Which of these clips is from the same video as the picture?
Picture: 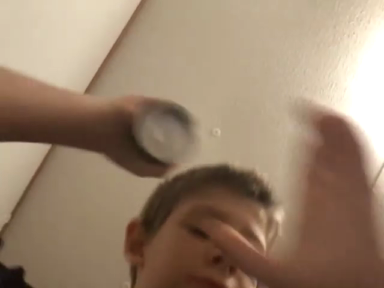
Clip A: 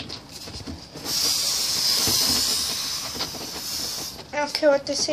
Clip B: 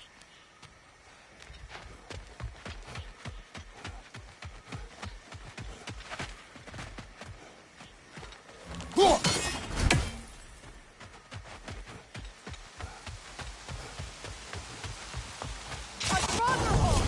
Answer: A